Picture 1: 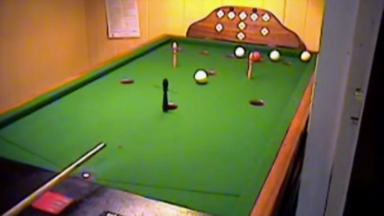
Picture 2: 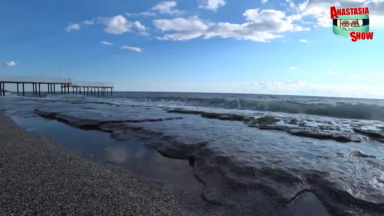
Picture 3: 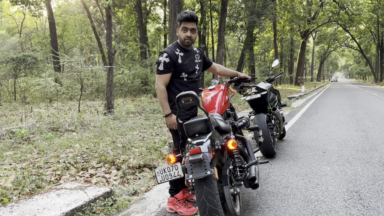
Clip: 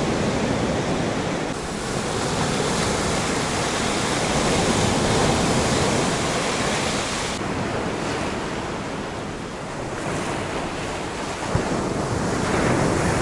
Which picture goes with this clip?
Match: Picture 2